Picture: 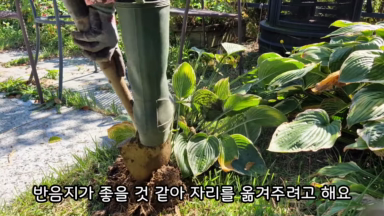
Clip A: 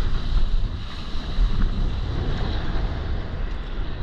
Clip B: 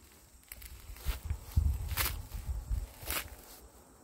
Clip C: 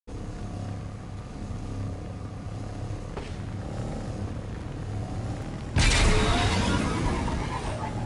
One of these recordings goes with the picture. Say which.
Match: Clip B